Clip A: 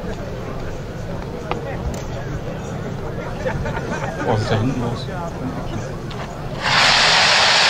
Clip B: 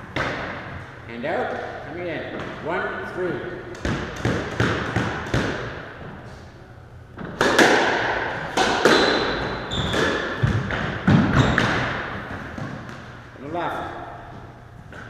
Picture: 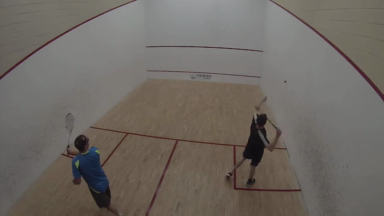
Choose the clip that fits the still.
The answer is B